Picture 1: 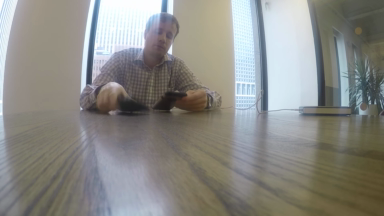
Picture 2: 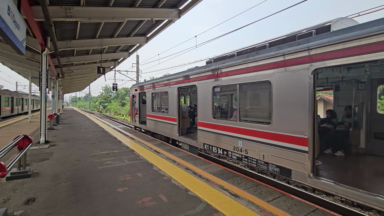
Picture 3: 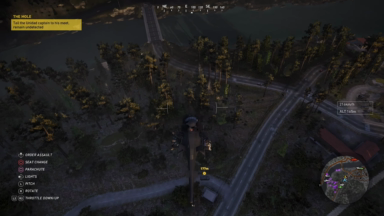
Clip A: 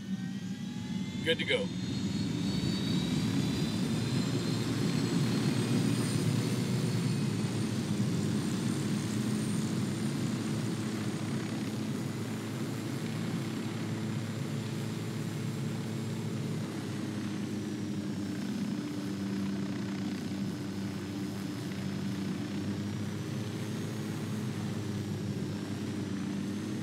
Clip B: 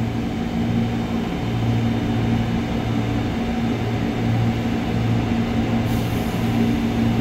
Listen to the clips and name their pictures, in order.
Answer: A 3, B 2